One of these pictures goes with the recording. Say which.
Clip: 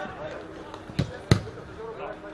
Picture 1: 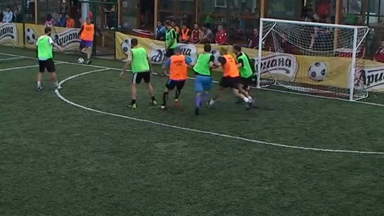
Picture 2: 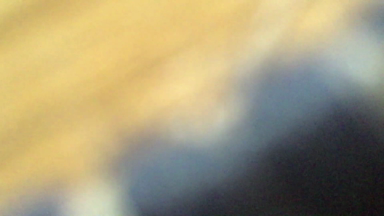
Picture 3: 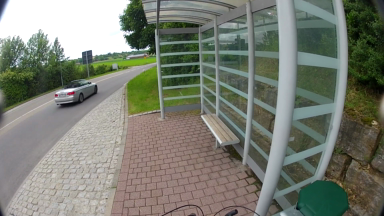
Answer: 1